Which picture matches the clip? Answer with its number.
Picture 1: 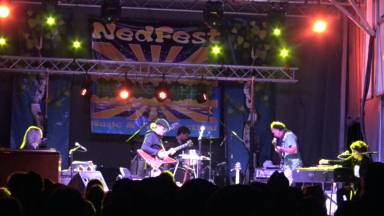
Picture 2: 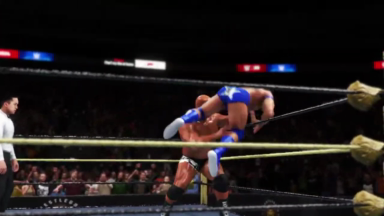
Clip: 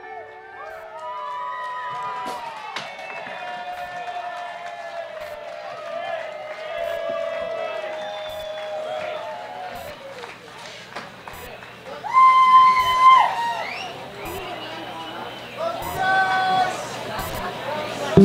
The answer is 1